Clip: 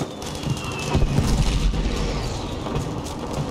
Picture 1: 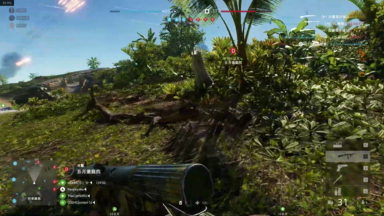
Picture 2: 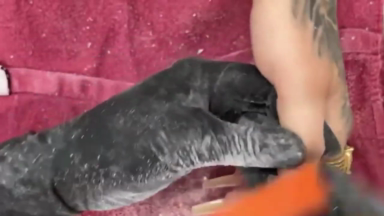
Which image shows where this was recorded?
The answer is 1